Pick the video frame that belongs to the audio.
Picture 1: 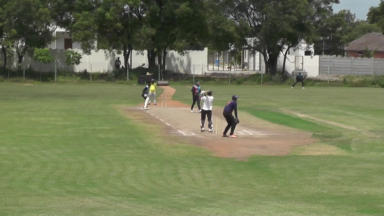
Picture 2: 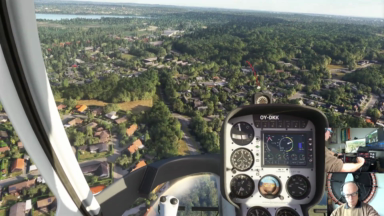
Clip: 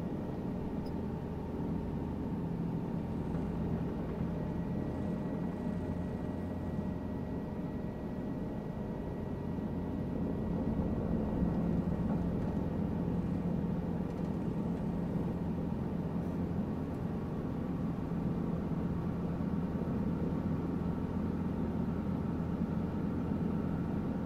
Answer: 2